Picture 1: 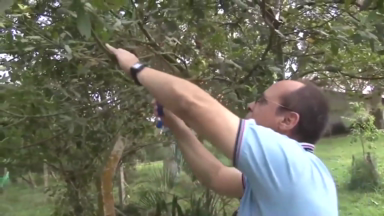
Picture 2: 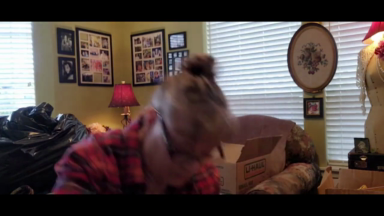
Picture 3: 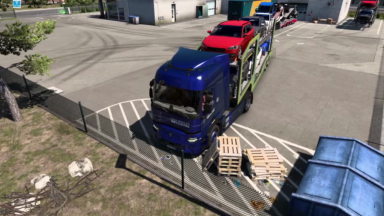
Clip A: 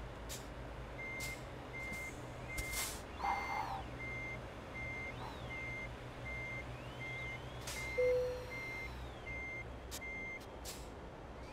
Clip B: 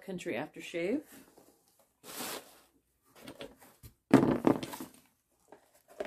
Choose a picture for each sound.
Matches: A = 3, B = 2